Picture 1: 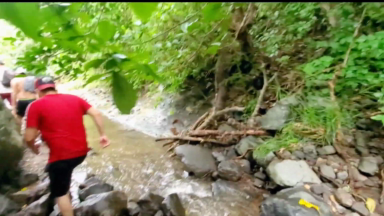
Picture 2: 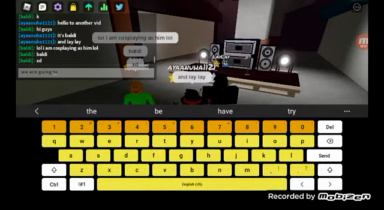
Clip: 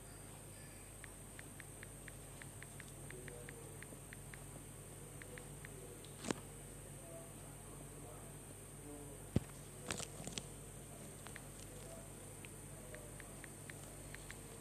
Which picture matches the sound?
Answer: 2